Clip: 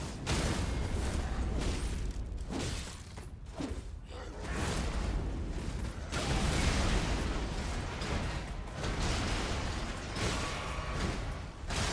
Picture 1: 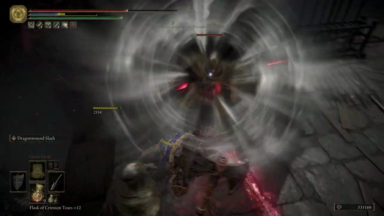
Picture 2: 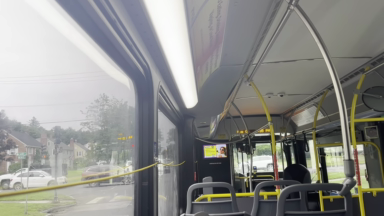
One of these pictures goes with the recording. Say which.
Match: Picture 1